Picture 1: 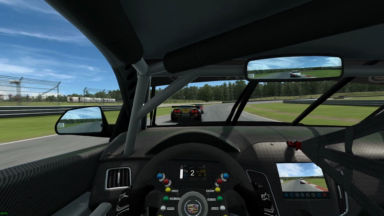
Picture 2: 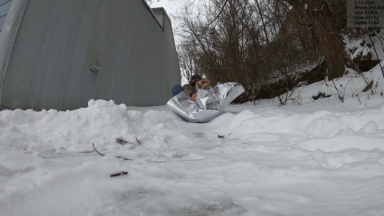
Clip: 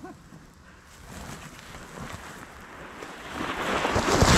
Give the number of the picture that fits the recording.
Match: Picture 2